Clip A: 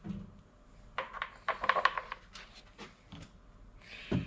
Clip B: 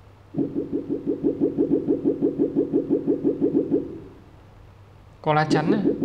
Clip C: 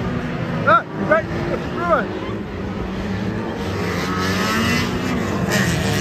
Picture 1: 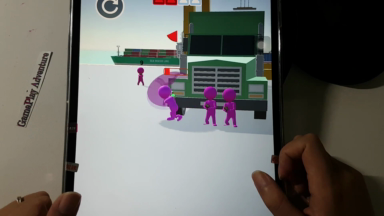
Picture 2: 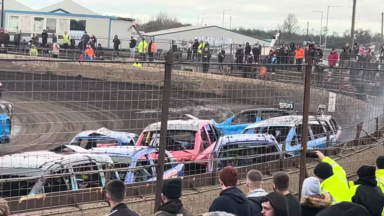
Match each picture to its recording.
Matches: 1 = B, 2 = C